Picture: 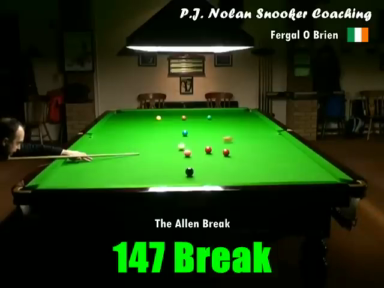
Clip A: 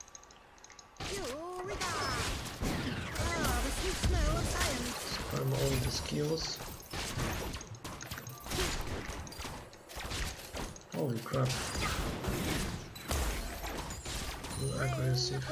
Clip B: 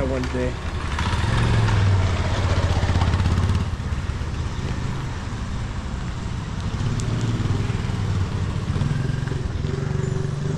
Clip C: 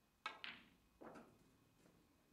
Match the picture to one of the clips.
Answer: C